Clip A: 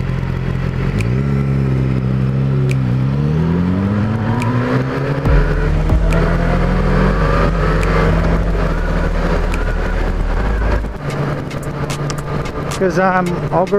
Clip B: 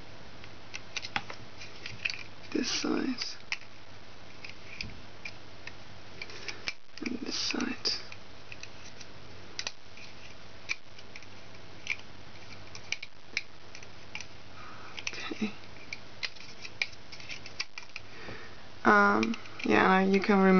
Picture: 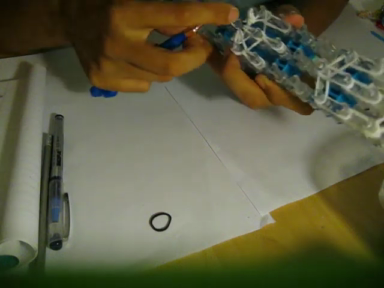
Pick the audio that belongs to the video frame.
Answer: B